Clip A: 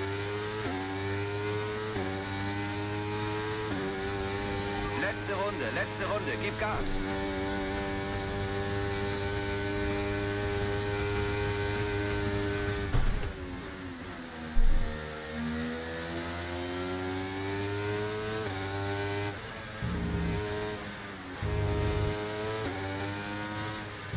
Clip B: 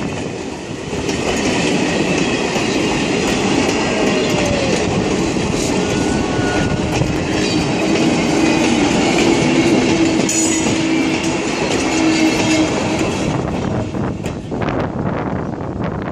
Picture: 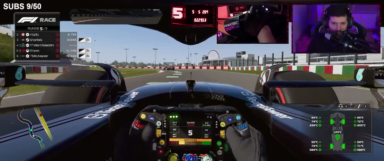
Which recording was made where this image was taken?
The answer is A